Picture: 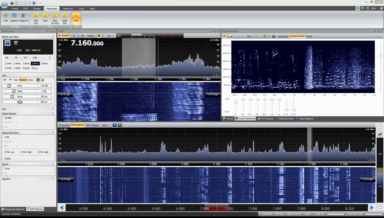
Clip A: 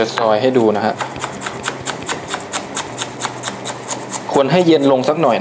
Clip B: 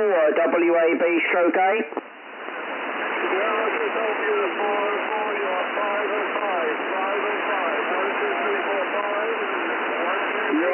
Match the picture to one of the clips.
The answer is B